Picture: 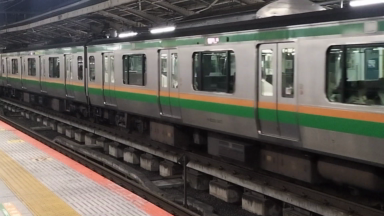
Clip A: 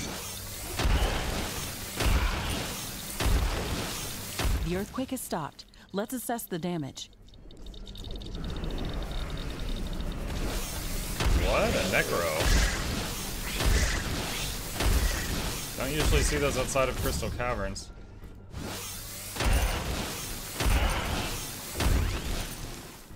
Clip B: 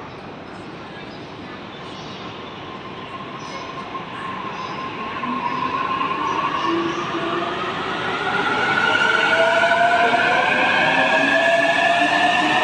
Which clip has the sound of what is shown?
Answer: B